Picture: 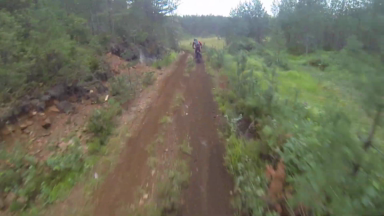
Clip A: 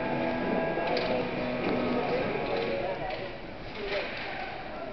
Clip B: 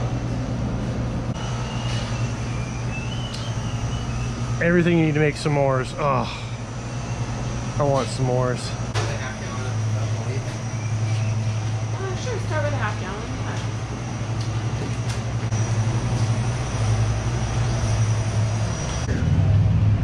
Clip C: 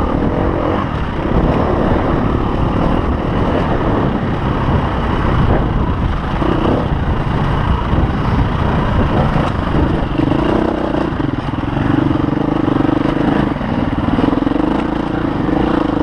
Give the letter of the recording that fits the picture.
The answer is C